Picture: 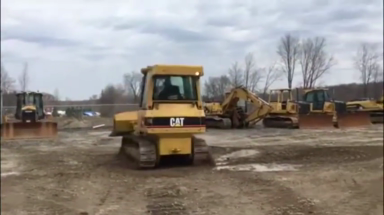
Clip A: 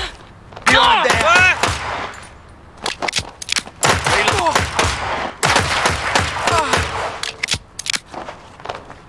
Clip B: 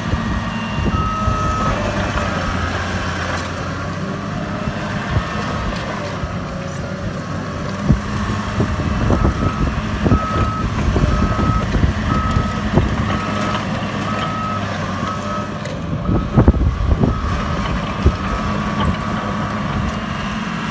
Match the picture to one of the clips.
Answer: B